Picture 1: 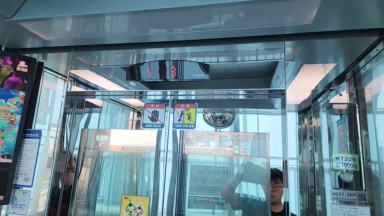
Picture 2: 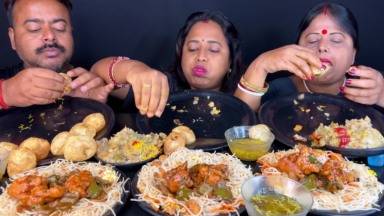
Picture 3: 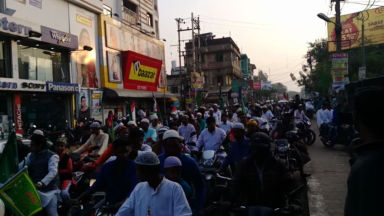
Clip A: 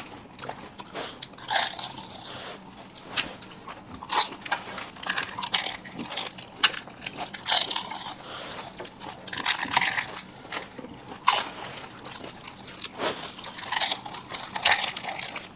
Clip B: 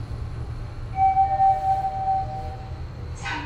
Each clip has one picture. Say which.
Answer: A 2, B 1